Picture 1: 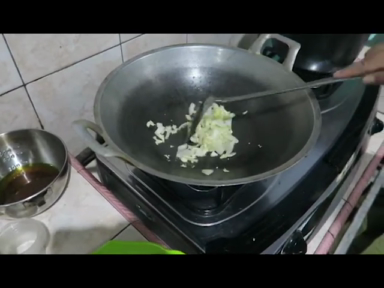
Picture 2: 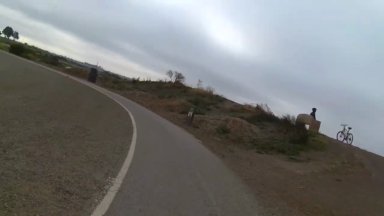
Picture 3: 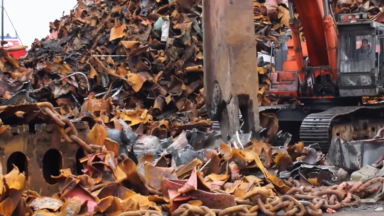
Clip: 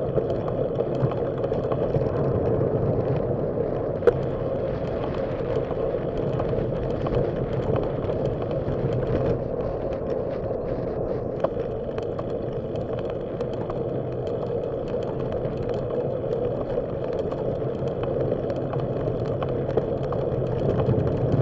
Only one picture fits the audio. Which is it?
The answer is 2